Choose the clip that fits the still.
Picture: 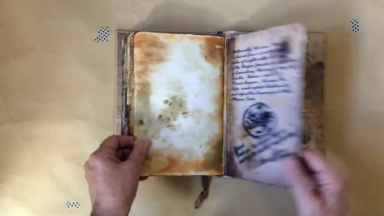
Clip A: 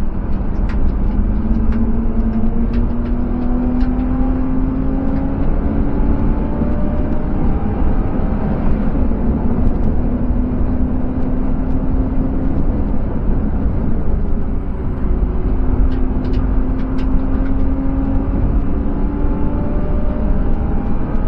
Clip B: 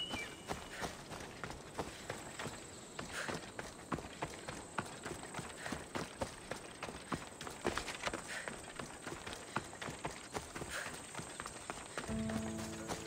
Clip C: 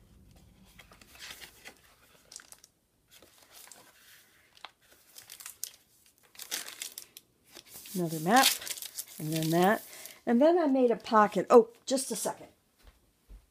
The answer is C